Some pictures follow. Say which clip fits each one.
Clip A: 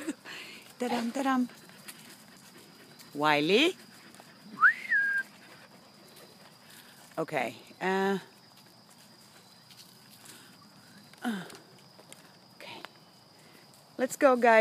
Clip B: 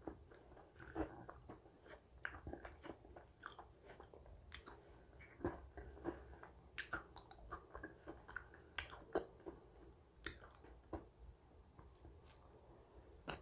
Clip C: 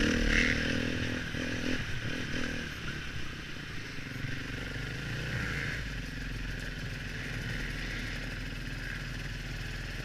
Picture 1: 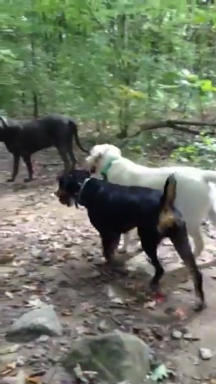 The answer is A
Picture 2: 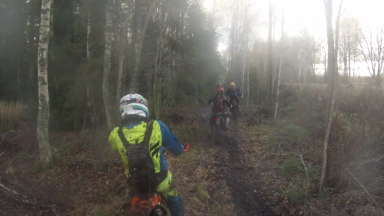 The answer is C